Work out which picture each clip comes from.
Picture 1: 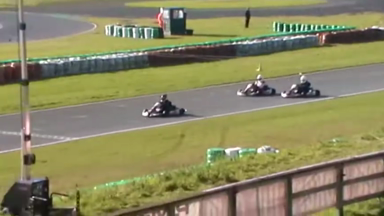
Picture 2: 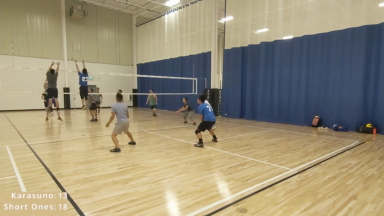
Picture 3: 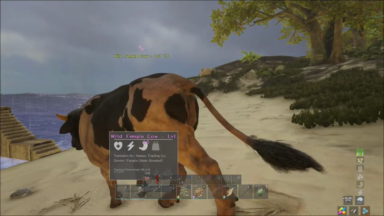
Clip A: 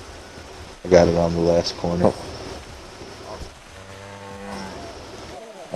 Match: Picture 3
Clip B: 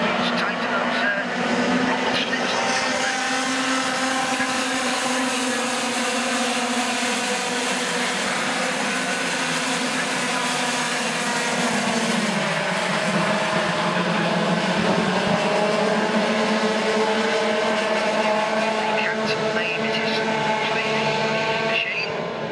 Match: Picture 1